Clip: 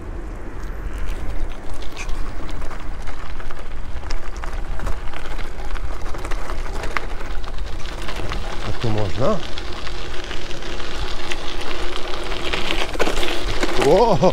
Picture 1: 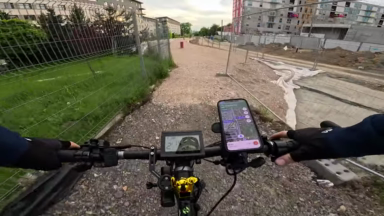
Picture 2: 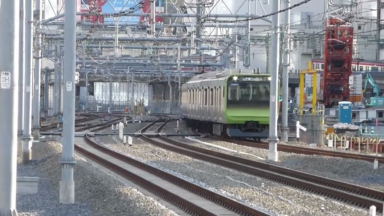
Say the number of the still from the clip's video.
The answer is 1